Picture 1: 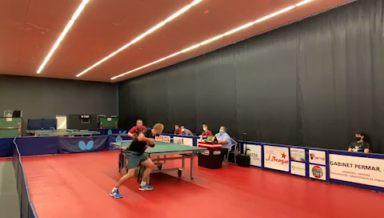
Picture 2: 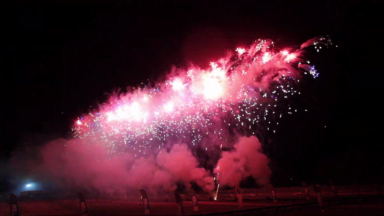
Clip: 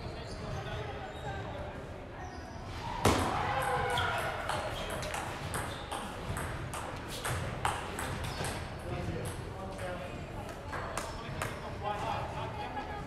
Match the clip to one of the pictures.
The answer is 1